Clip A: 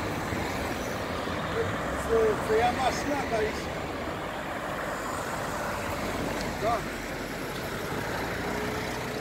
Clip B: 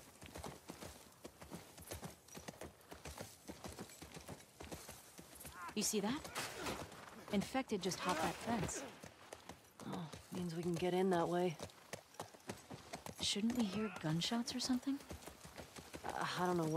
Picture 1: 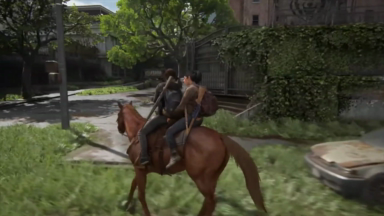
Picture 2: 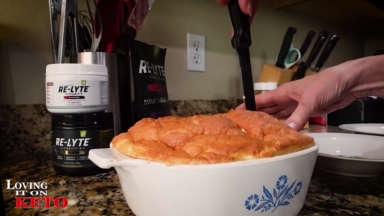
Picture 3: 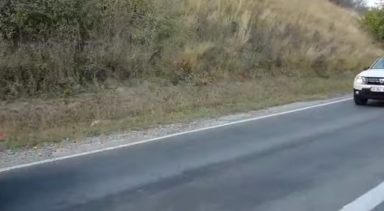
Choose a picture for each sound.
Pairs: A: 3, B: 1